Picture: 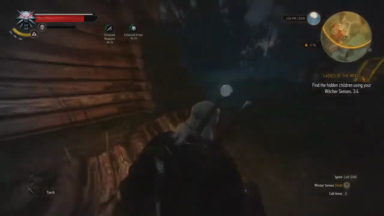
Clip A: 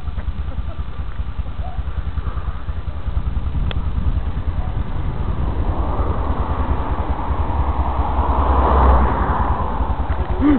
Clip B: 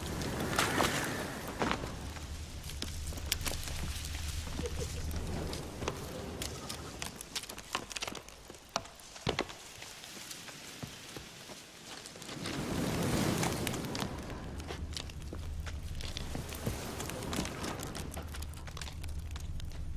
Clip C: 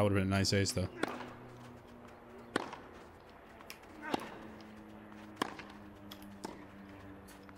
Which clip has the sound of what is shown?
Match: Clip B